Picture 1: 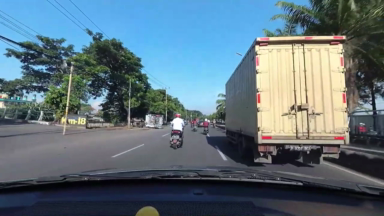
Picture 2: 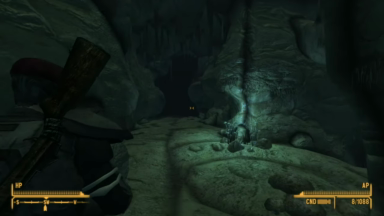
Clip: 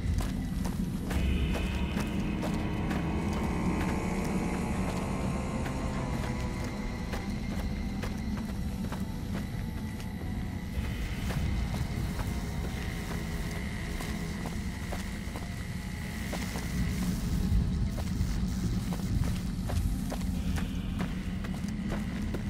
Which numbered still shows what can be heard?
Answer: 2